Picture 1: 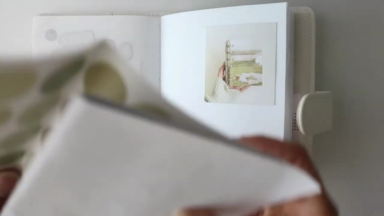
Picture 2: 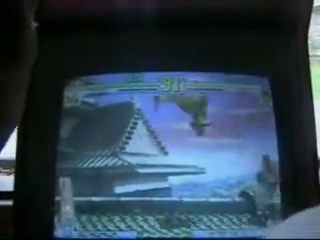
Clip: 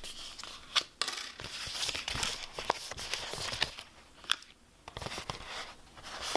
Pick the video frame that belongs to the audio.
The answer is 1